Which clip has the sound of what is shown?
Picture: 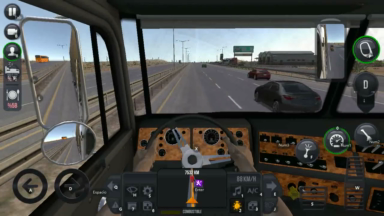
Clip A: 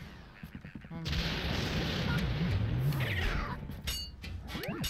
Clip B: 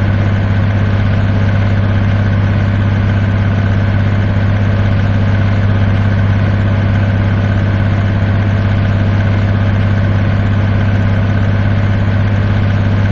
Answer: B